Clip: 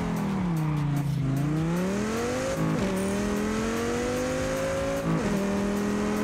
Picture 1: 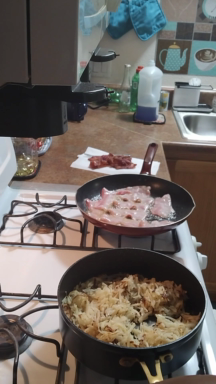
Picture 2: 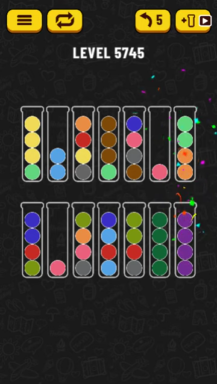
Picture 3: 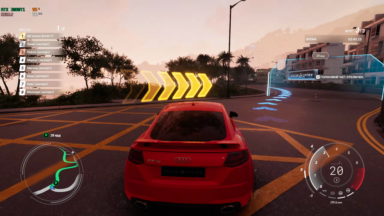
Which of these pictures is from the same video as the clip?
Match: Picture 3